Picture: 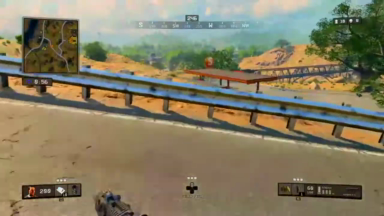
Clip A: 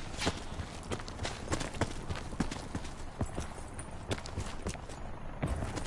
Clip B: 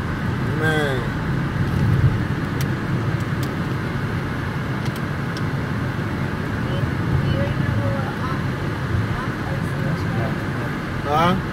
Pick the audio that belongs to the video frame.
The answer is A